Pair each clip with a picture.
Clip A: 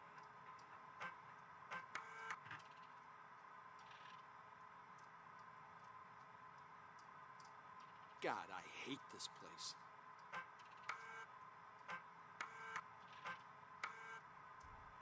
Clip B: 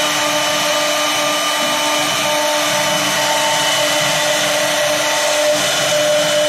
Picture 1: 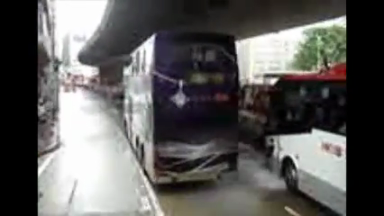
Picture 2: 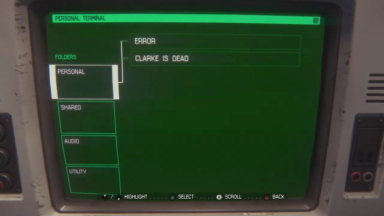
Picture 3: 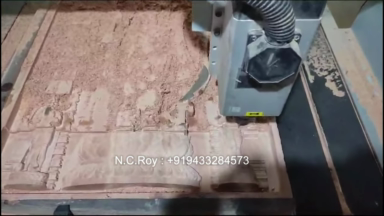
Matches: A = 2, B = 3